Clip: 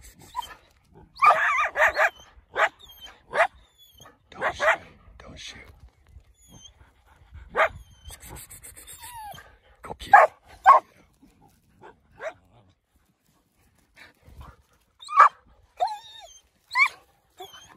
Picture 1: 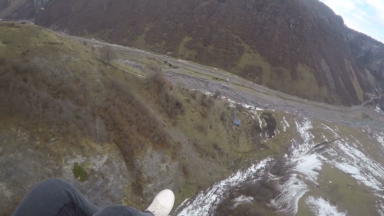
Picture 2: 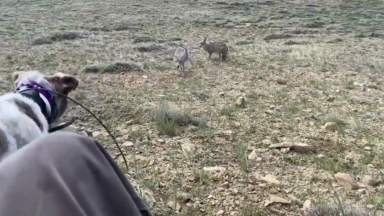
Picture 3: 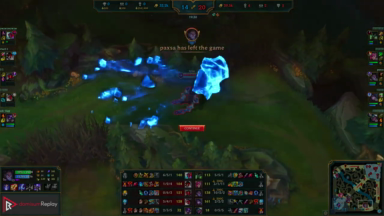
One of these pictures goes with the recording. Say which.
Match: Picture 2